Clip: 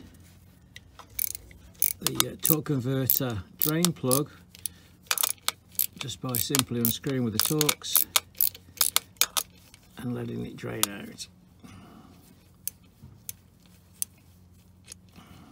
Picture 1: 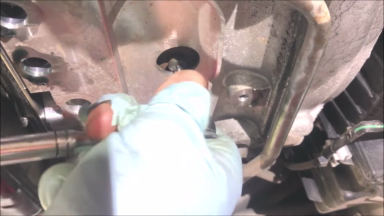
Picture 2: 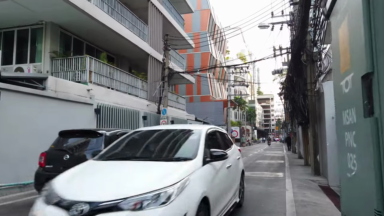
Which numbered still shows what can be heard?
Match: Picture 1